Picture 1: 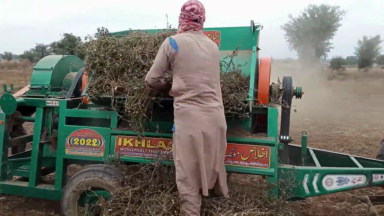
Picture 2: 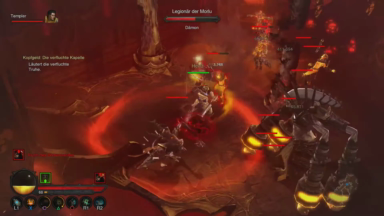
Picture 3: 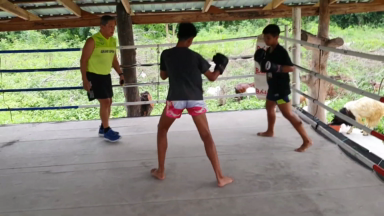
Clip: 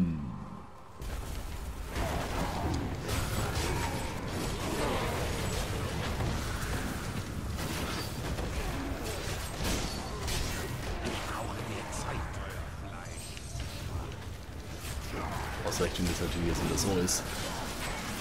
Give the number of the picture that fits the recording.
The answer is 2